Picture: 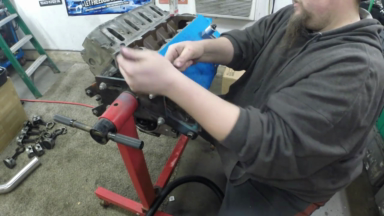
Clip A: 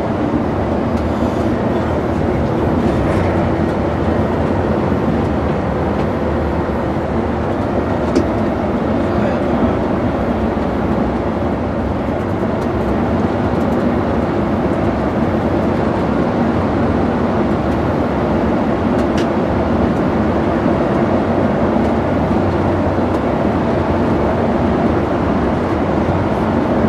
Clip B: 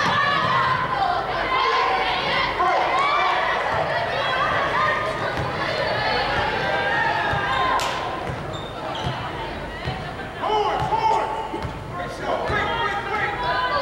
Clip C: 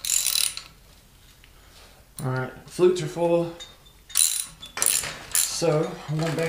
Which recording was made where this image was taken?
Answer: C